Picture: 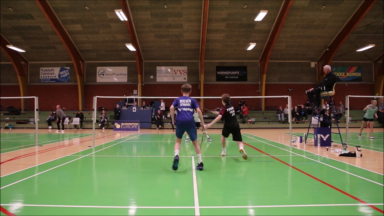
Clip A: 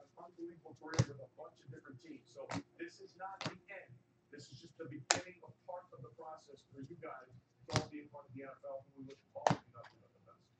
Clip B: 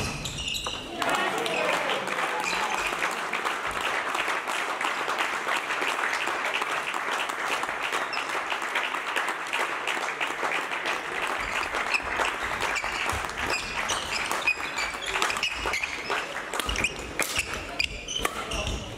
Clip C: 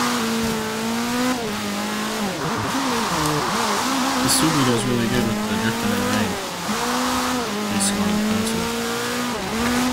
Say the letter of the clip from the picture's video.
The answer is B